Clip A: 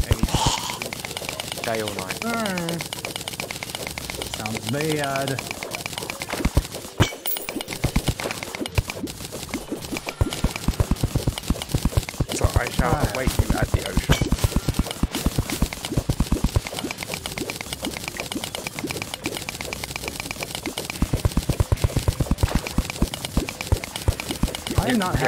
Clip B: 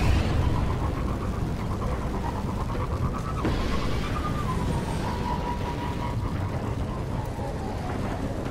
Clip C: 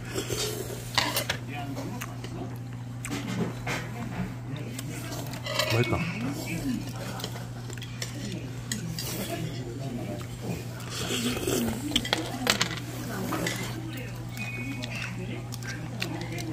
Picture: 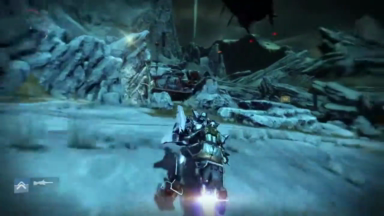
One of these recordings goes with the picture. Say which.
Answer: B